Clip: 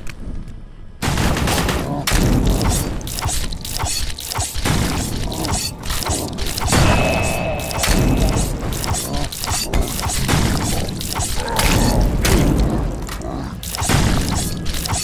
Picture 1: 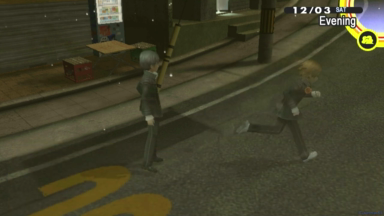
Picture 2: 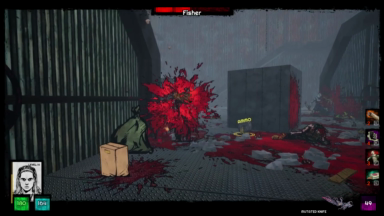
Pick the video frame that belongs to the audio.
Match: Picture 2